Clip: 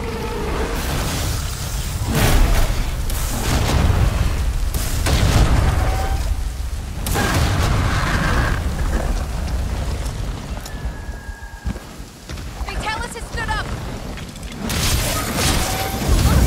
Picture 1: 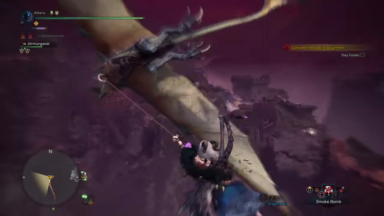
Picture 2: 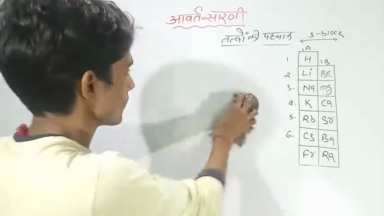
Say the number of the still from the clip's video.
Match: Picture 1